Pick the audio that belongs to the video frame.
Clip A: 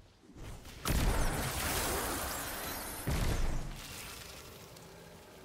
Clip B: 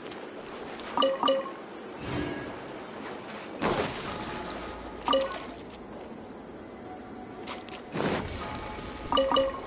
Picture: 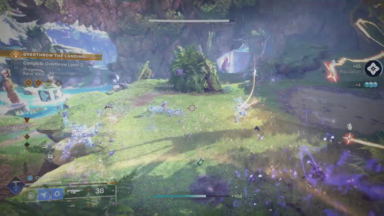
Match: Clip A